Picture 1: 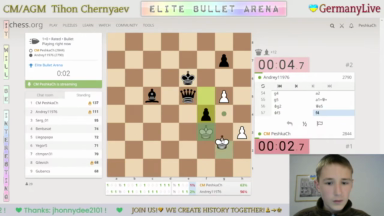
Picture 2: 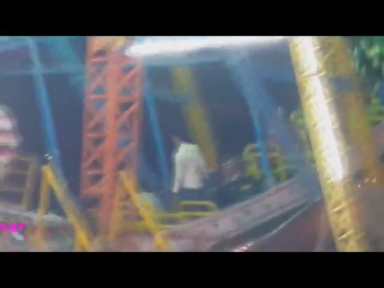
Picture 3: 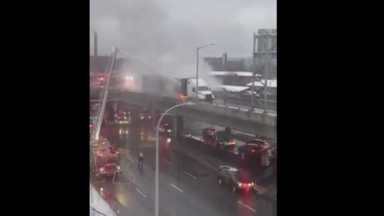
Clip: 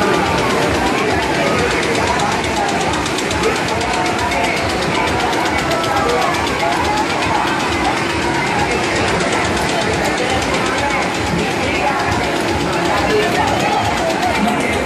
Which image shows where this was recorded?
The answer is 2